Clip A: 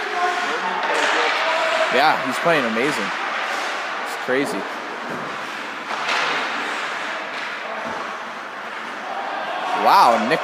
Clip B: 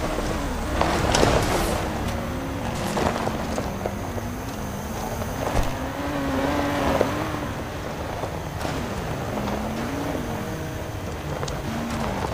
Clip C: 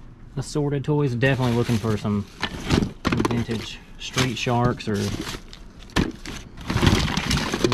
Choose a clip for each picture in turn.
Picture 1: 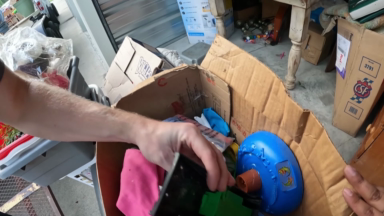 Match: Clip C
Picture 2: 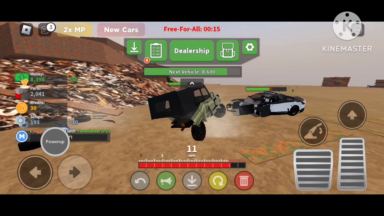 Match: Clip B